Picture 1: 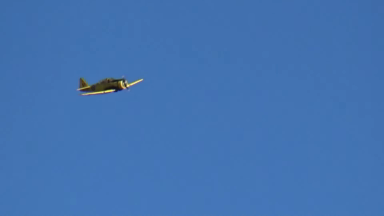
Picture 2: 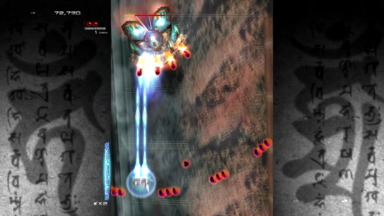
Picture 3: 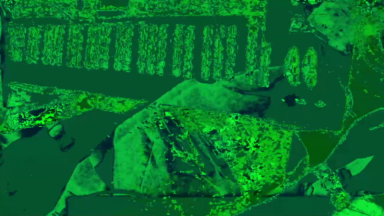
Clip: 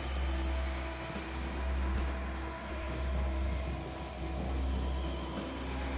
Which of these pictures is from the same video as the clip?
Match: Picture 3